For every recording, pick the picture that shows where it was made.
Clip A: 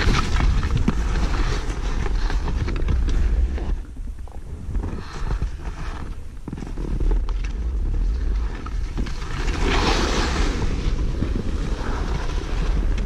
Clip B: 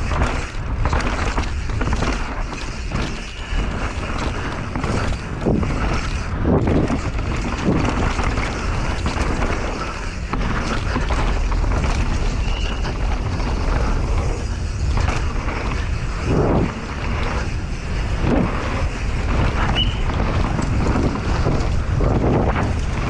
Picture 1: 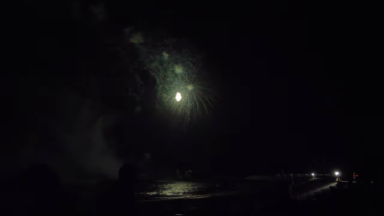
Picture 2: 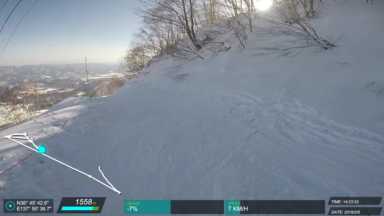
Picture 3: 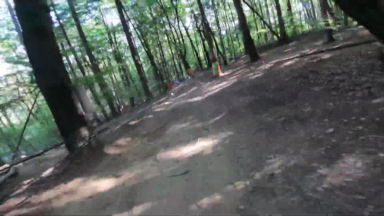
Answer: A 2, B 3